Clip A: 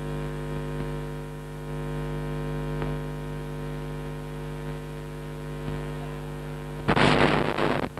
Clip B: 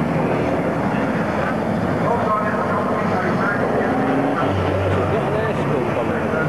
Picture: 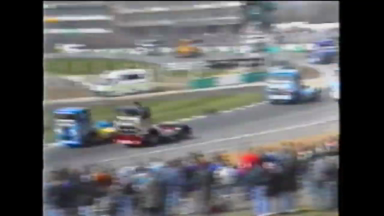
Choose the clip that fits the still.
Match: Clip B